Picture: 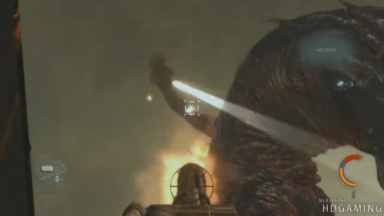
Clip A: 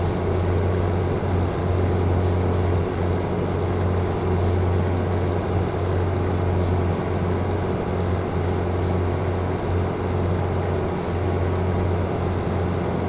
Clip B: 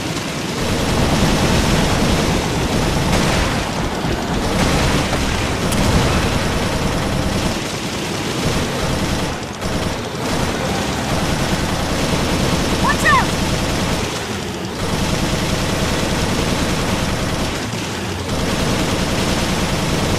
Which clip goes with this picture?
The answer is B